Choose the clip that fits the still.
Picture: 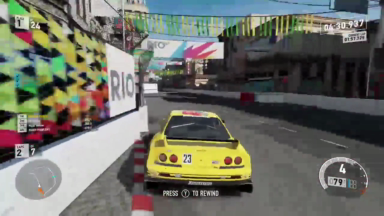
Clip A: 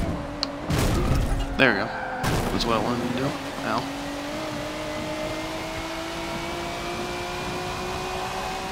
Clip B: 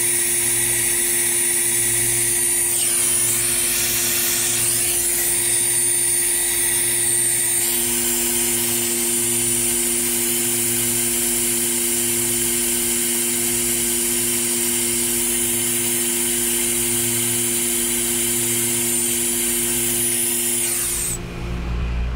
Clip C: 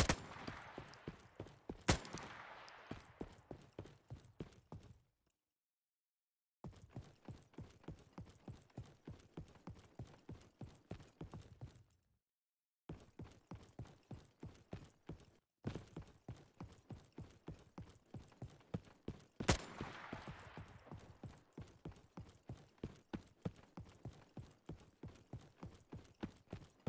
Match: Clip A